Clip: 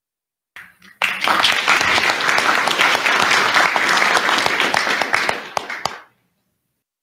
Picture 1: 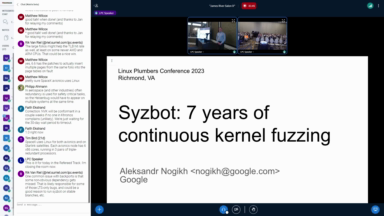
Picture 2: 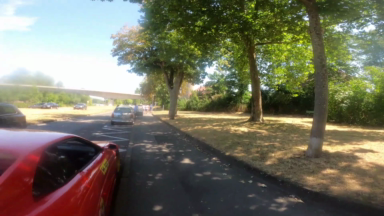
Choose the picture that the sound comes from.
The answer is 1